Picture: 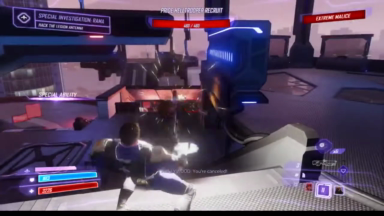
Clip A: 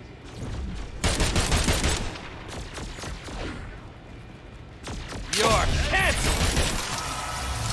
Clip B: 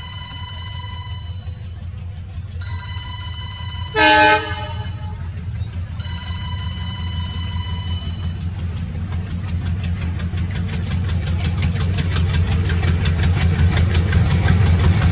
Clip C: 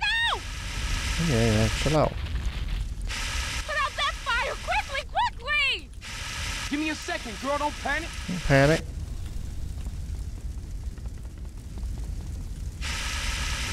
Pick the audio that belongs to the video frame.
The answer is A